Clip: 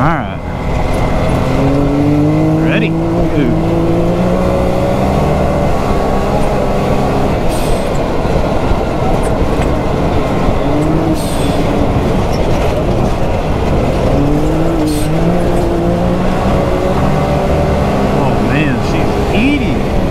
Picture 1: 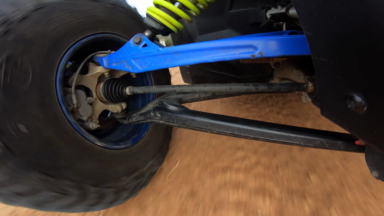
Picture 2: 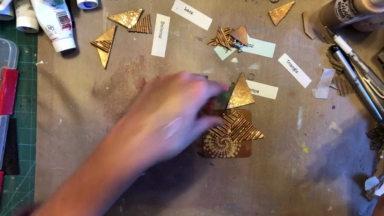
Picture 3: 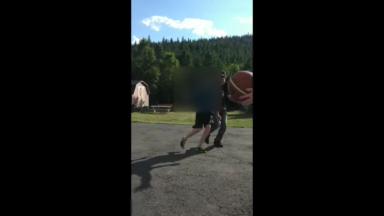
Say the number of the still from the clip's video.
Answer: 1